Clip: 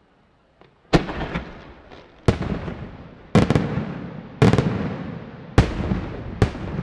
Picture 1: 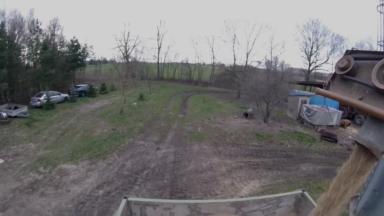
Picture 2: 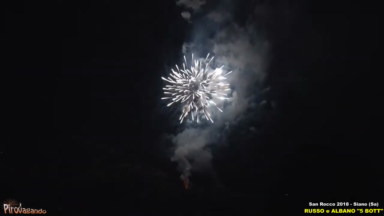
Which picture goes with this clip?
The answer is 2